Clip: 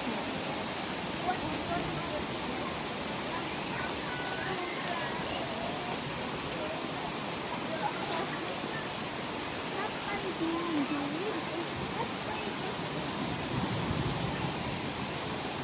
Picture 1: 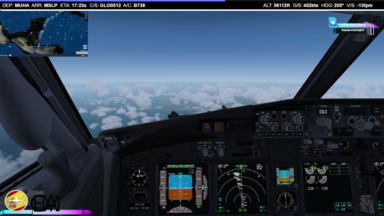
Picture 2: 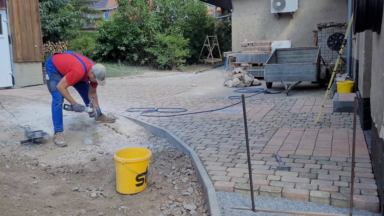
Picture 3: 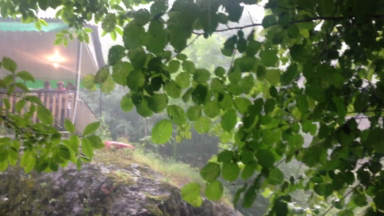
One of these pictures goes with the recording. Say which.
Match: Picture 3